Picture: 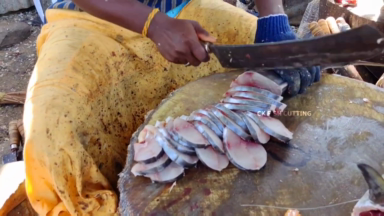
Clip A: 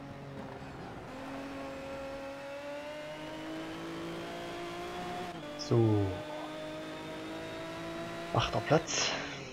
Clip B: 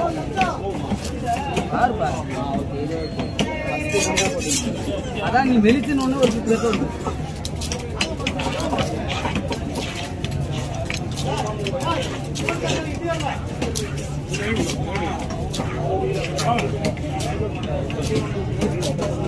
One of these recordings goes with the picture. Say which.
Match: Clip B